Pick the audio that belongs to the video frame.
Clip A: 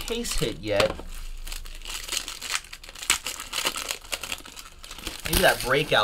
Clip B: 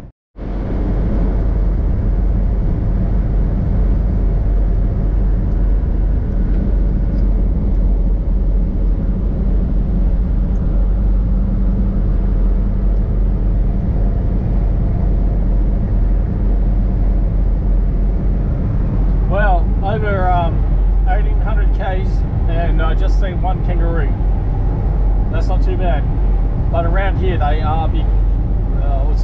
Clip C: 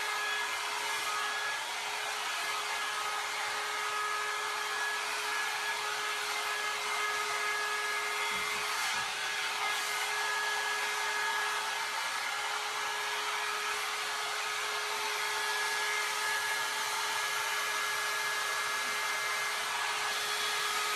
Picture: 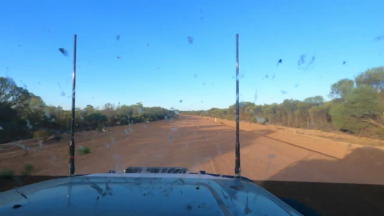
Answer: B